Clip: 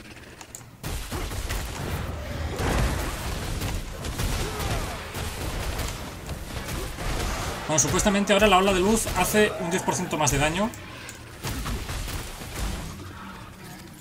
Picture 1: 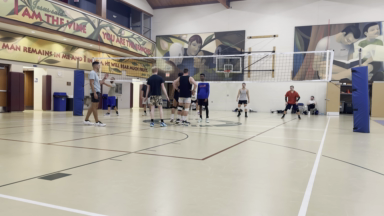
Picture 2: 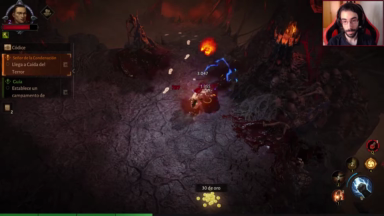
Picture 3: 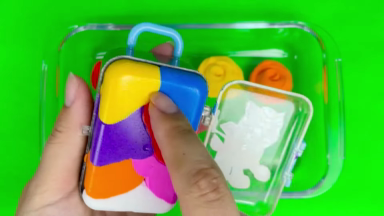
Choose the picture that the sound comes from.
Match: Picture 2